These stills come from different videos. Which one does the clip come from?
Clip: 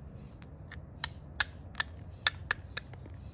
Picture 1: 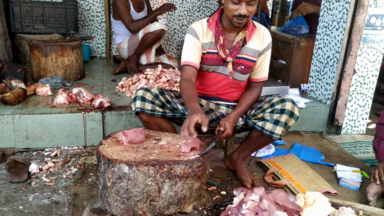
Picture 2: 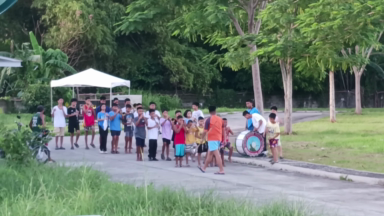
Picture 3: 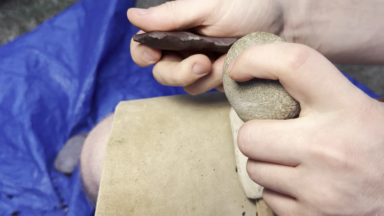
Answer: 3